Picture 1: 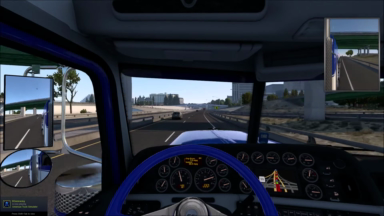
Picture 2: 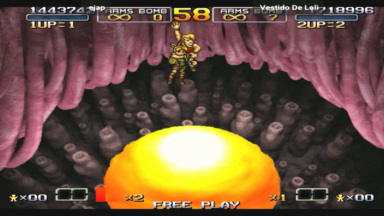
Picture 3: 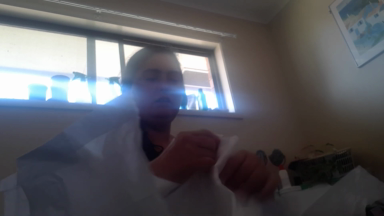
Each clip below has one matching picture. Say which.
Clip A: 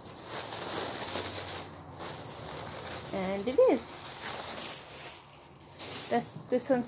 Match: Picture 3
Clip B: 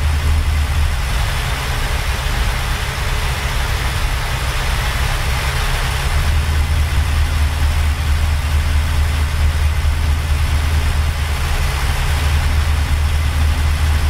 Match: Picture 1